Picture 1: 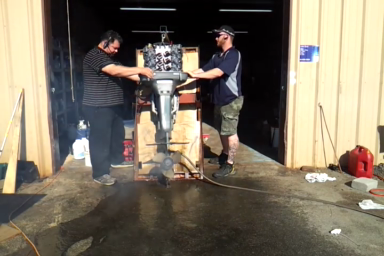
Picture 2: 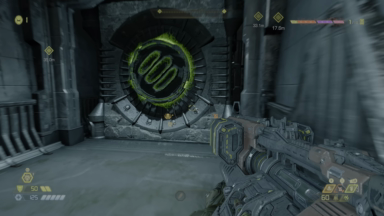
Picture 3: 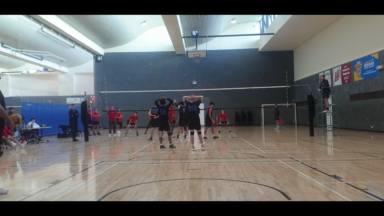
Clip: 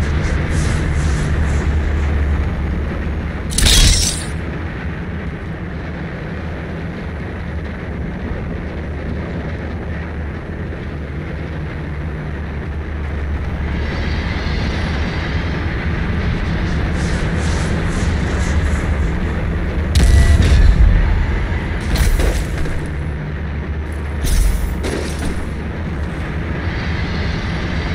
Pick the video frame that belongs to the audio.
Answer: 2